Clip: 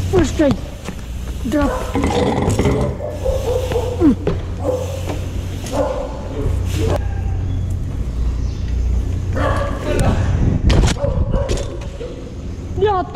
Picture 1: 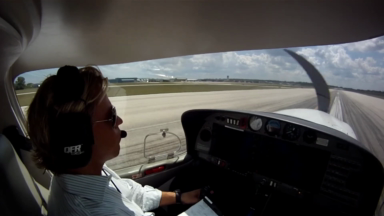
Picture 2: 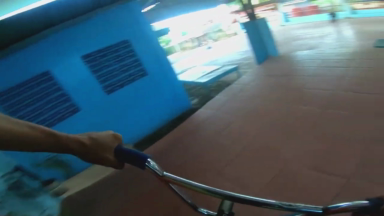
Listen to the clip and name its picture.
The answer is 2